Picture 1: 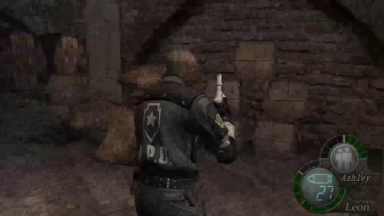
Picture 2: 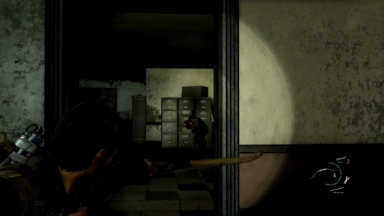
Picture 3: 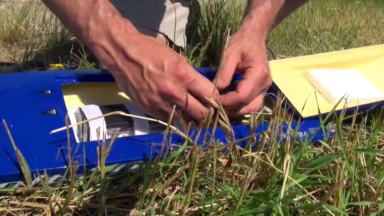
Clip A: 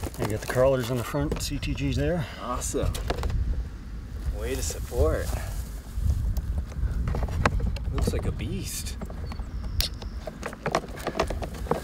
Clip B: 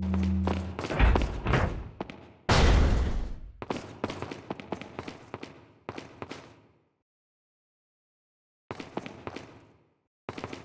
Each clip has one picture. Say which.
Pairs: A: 3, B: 1